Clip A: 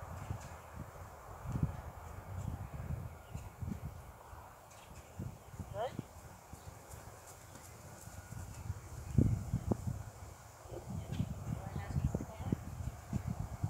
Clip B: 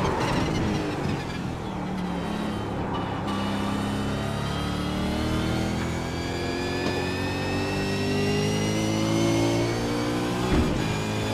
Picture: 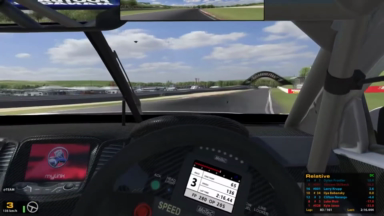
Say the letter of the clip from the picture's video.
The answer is B